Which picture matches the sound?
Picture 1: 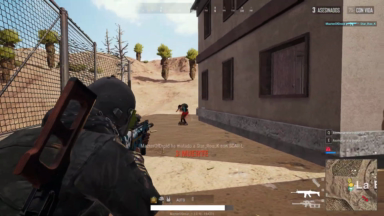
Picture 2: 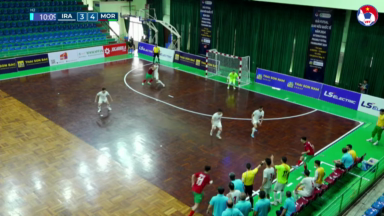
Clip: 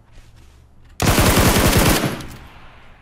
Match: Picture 1